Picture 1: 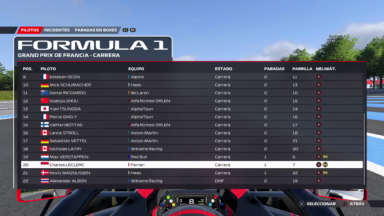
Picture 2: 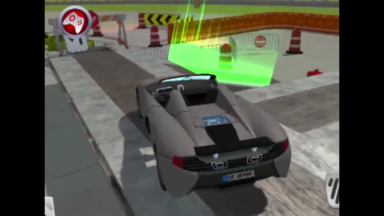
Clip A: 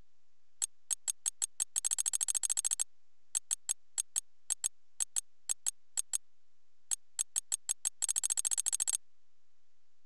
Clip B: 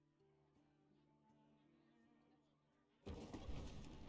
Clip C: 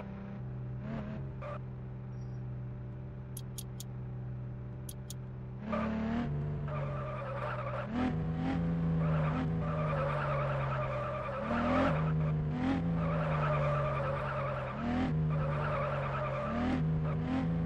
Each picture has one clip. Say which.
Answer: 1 A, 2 C